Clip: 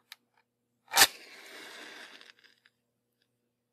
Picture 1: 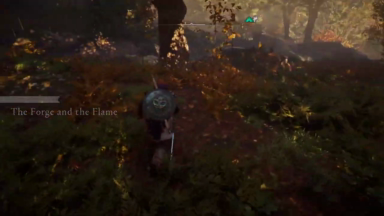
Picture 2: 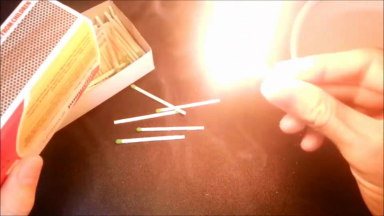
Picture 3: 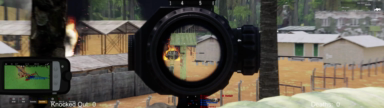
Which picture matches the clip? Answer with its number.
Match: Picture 2